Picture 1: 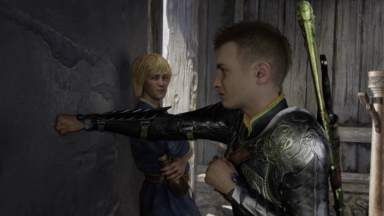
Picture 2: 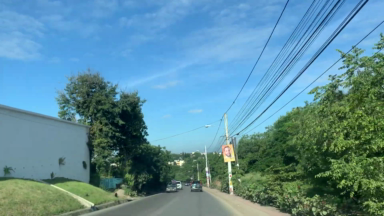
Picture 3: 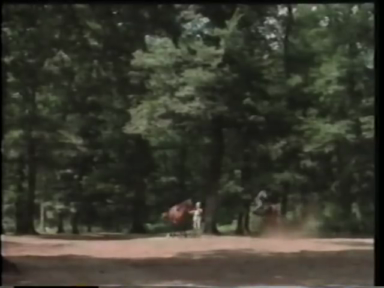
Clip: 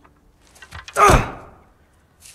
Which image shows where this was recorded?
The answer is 1